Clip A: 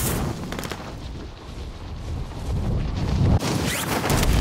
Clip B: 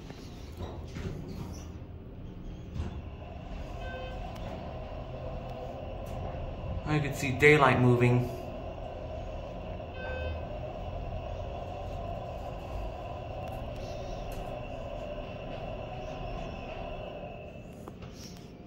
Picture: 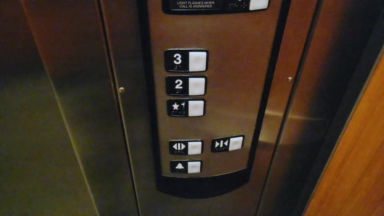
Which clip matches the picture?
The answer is B